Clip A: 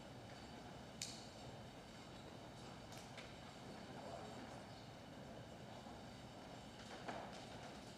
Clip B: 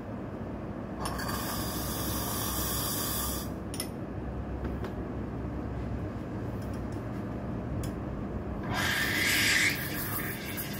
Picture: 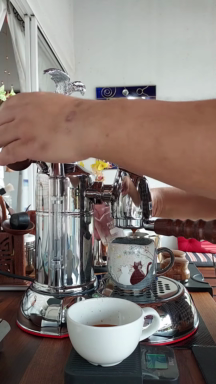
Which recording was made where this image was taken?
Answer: B